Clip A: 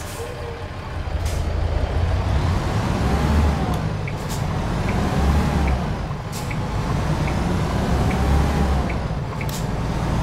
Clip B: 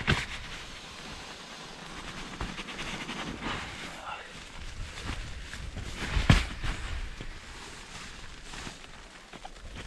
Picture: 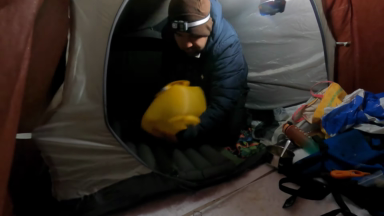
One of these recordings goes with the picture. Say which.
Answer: B